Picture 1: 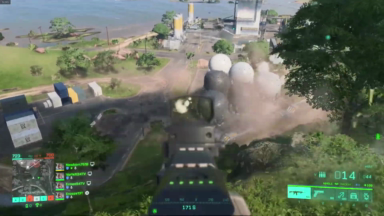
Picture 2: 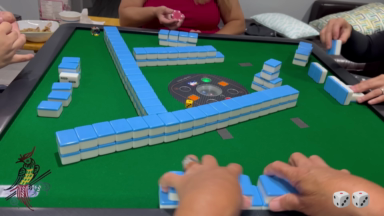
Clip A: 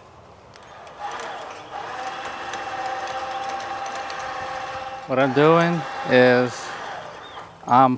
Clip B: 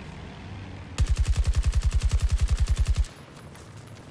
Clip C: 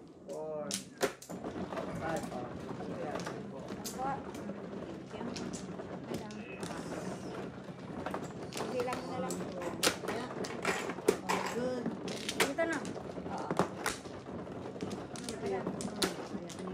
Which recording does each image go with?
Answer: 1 B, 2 C